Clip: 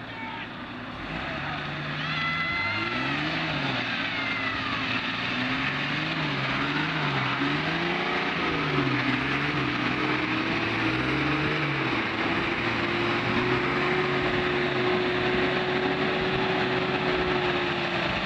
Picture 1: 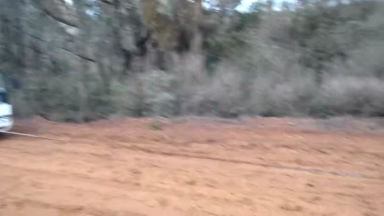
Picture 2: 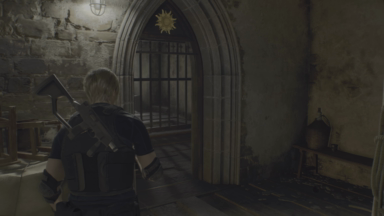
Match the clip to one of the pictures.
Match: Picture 1